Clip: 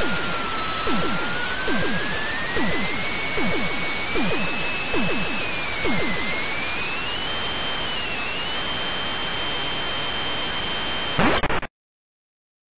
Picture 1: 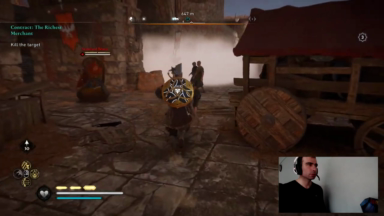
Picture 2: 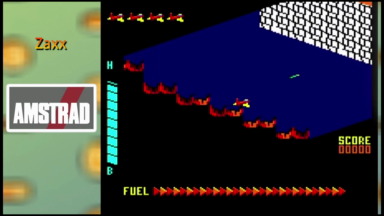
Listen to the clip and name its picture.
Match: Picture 2